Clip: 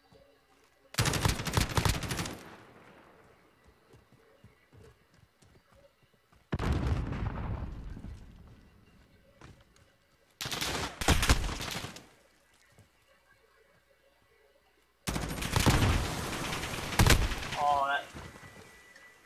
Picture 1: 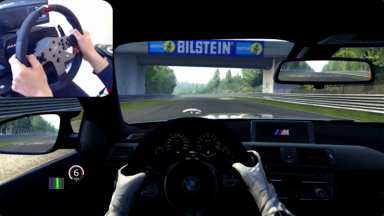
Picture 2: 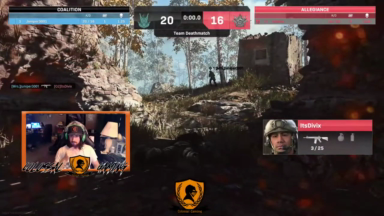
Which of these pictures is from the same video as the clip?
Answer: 2